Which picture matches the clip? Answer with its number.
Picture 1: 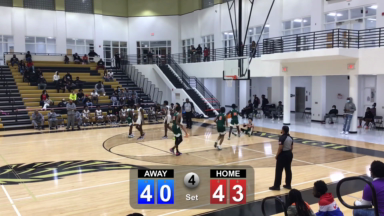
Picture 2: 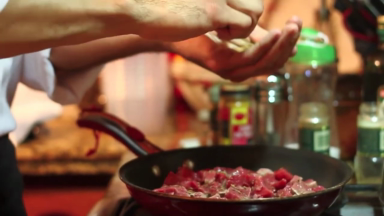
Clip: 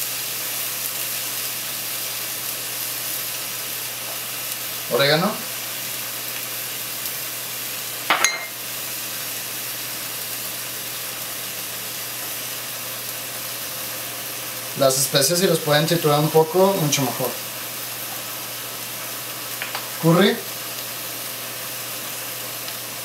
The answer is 2